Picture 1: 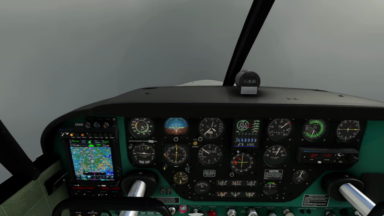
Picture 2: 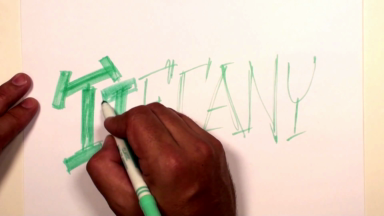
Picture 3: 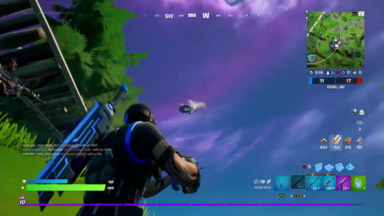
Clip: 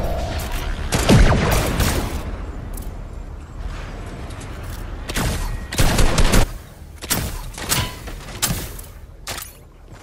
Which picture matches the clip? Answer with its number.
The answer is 3